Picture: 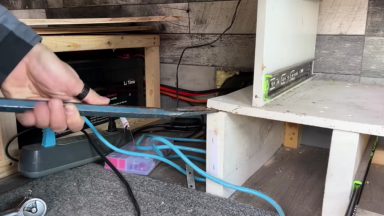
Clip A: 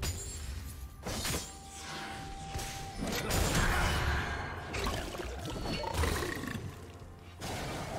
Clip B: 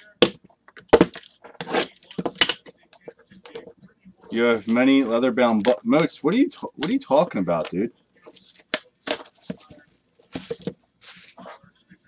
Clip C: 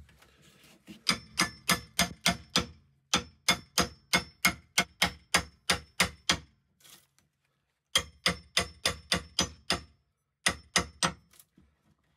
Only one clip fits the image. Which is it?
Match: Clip C